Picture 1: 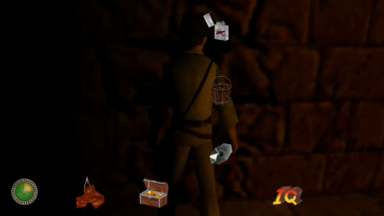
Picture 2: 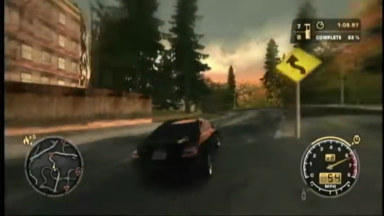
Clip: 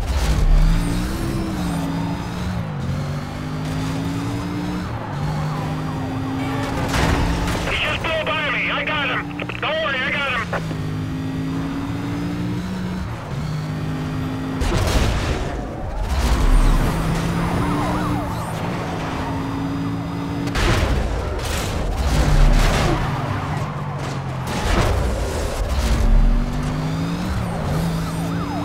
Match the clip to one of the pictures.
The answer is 2